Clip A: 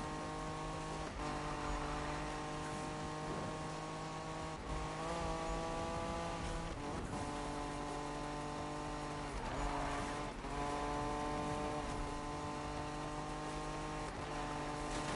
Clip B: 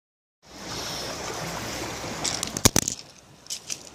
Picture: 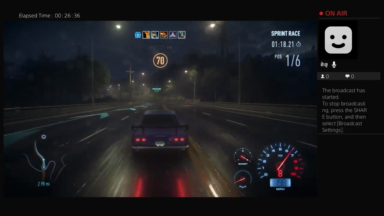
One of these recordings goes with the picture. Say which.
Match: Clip A